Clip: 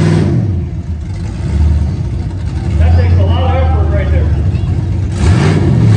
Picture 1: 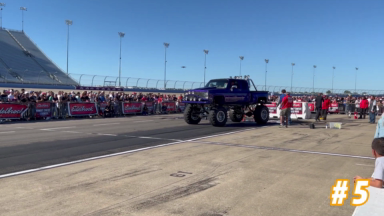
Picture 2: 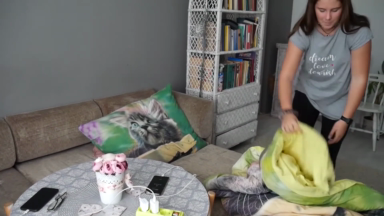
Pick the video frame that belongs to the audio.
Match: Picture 1